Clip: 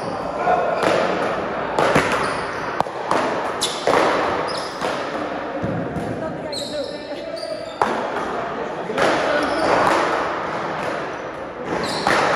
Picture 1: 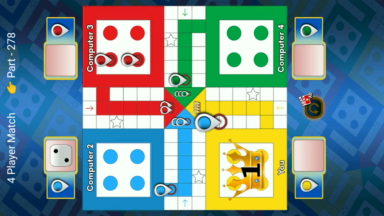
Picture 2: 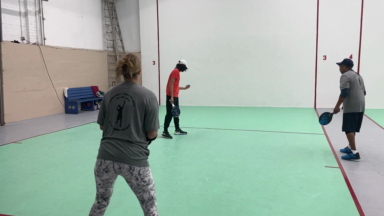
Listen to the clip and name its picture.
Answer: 2